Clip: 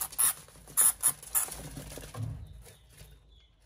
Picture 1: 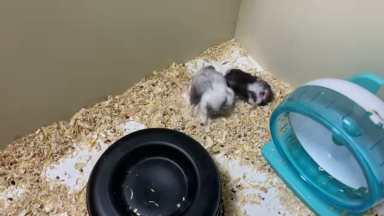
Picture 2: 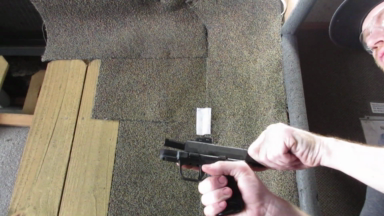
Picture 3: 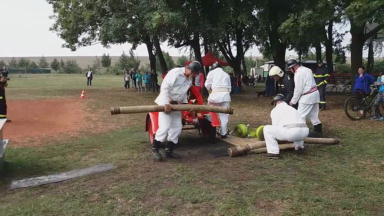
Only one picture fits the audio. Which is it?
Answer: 1